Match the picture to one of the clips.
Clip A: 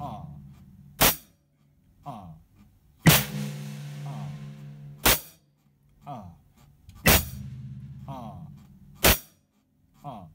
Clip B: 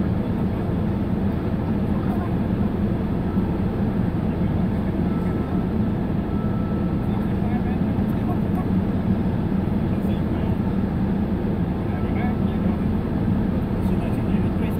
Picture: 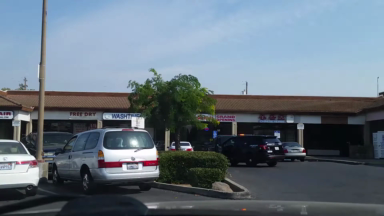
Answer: B